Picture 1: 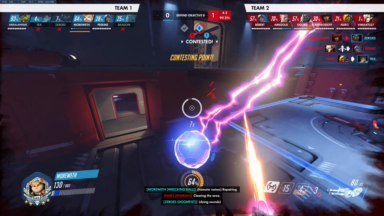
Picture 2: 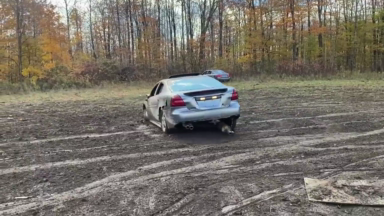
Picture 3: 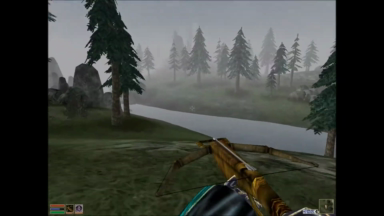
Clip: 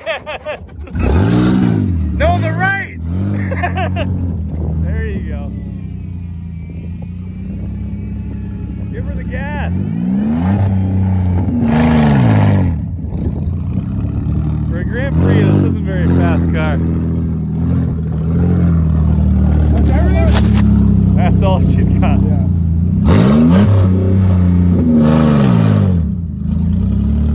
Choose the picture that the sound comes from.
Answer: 2